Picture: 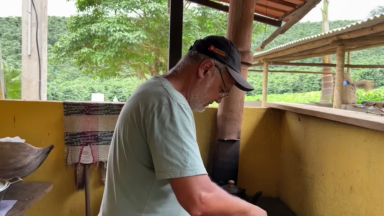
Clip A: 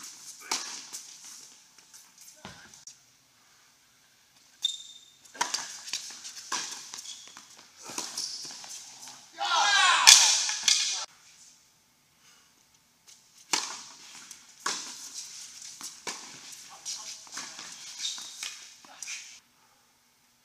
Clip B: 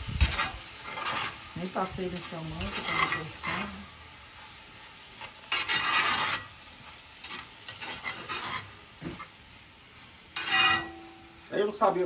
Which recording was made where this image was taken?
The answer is B